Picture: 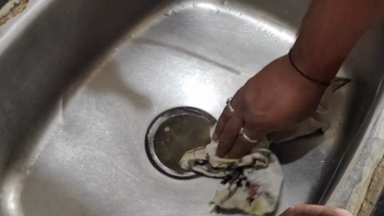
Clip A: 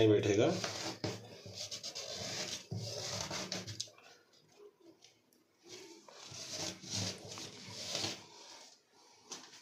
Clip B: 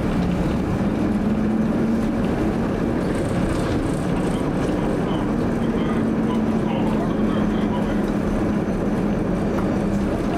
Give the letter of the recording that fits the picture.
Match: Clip A